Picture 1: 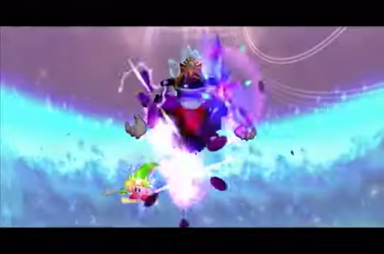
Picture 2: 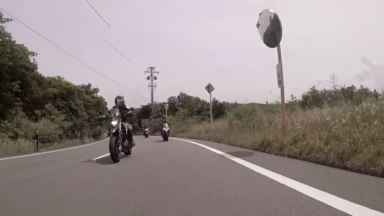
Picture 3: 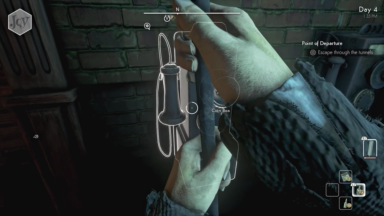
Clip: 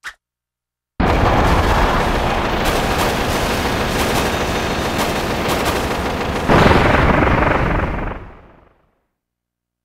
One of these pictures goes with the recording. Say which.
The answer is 1